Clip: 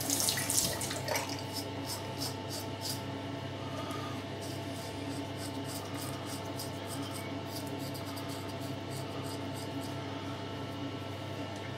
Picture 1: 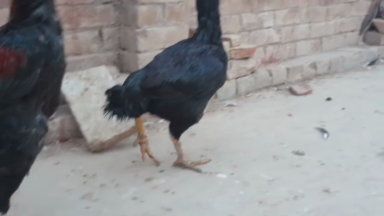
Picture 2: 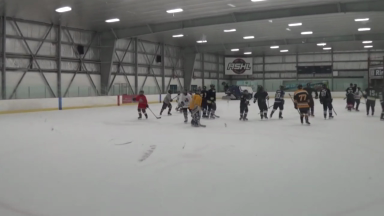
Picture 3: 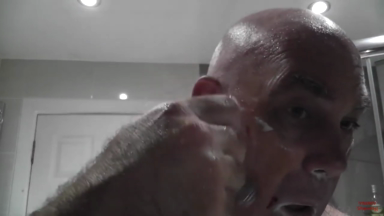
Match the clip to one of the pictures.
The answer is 3